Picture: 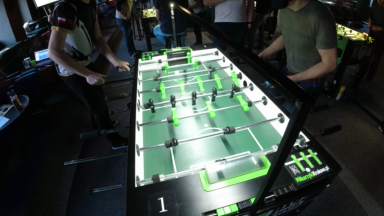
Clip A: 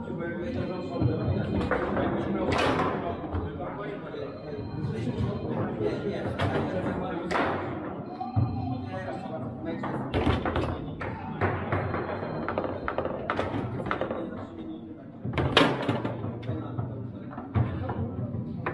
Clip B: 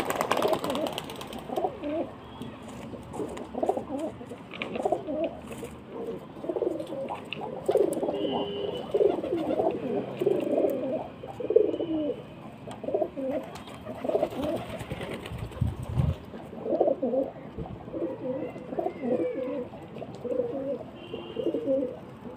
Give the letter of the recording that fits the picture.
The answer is A